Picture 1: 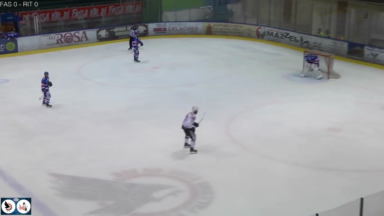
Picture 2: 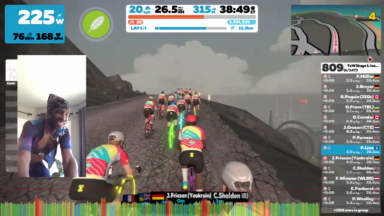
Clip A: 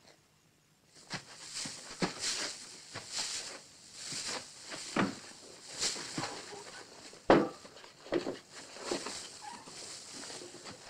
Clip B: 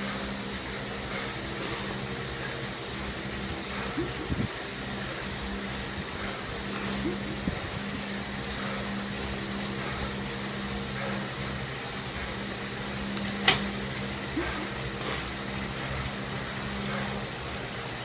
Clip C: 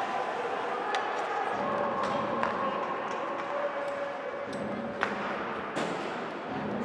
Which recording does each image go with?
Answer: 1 C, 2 B